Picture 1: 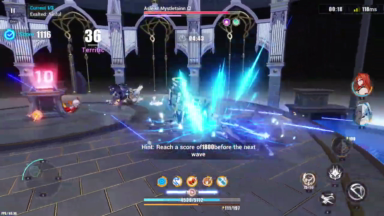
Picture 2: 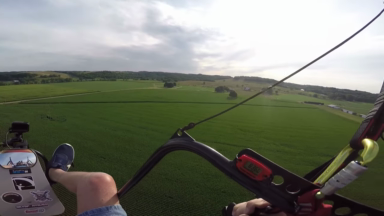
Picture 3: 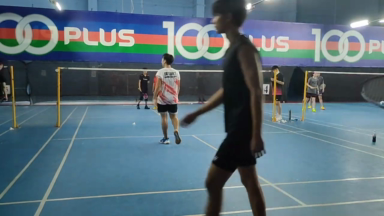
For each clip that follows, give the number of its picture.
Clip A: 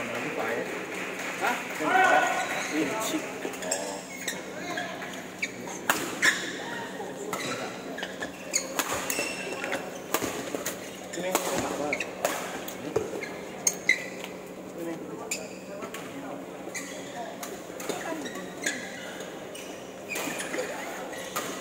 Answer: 3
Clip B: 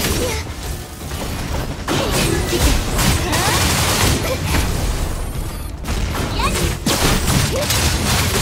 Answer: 1